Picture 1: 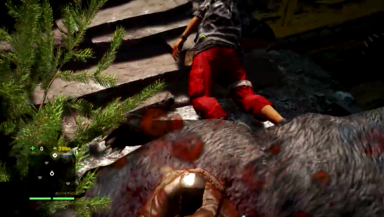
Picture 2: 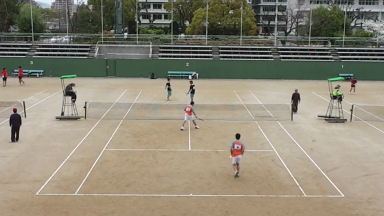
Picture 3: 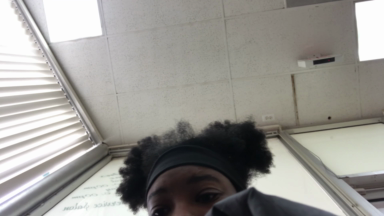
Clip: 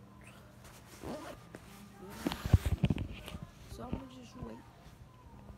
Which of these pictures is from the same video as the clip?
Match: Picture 3